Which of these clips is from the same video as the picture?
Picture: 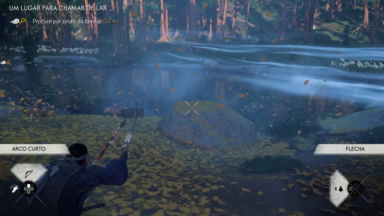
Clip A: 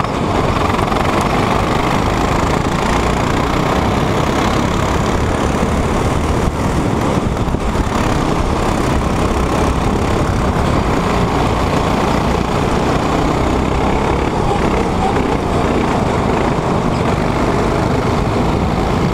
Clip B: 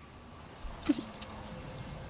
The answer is B